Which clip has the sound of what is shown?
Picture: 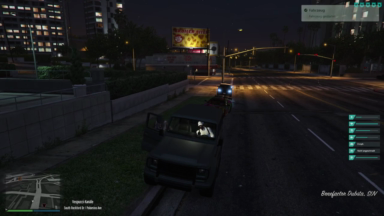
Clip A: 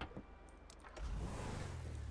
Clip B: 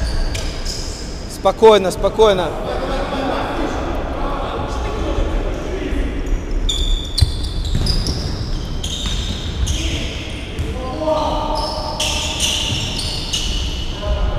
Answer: A